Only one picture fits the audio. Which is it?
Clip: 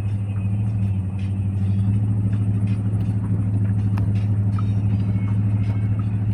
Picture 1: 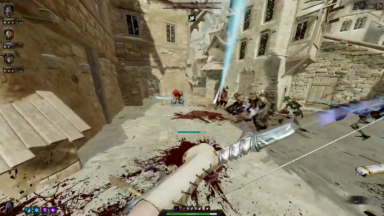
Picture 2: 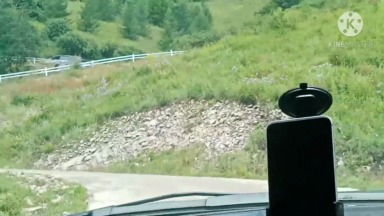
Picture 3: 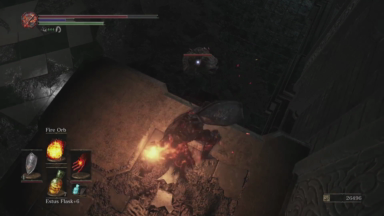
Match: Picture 2